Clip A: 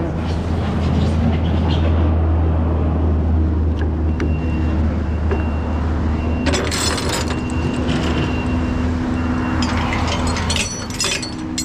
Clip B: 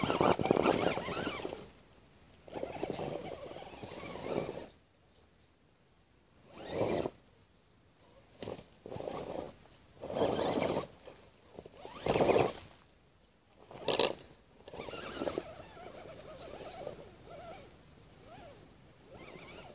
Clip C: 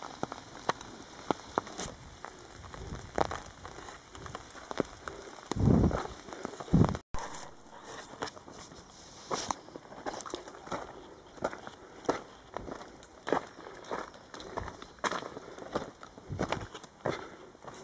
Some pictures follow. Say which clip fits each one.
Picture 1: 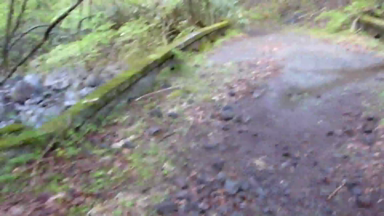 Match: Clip C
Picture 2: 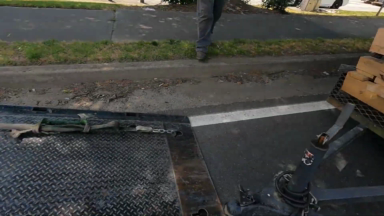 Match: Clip A